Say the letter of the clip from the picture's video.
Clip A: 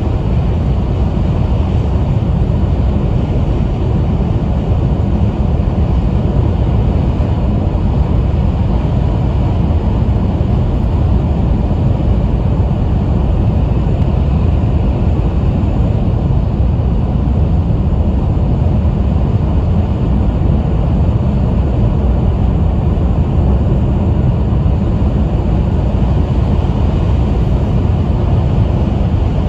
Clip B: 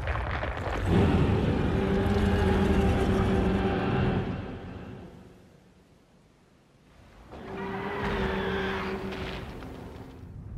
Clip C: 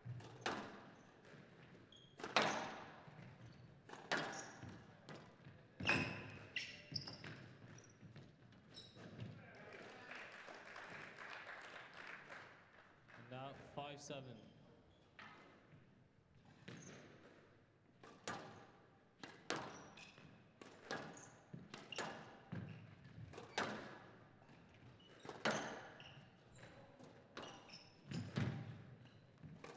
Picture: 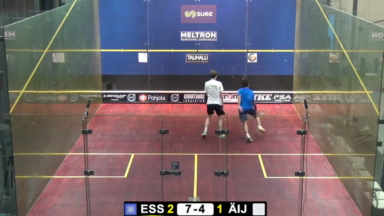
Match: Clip C